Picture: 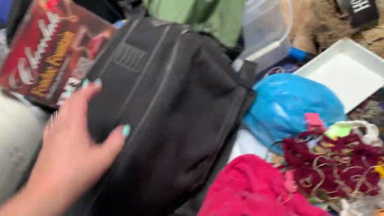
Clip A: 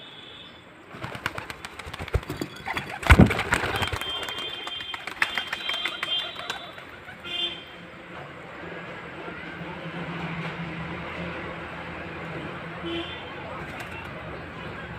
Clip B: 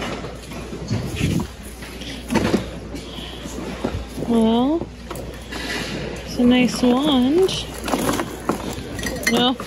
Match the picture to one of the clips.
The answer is B